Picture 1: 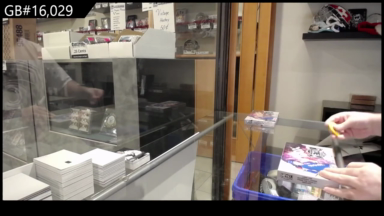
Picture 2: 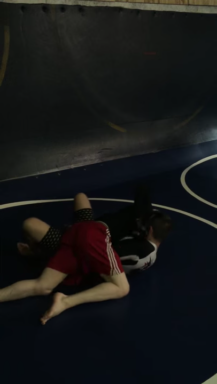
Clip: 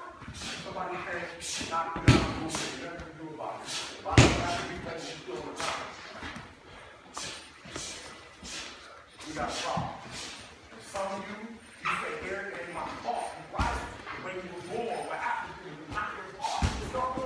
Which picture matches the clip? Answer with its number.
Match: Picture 2